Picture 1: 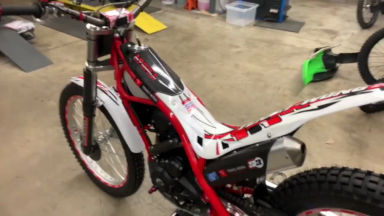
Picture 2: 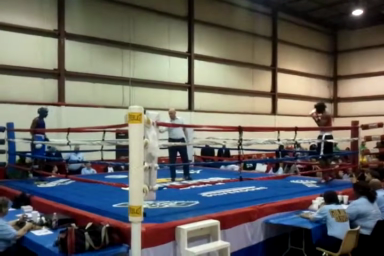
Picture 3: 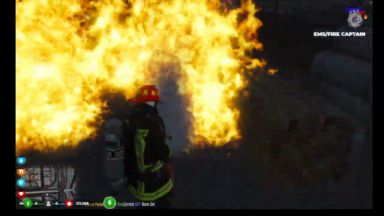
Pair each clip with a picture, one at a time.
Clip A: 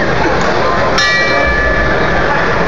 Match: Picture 2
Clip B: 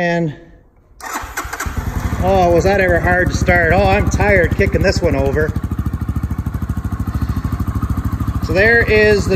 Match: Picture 1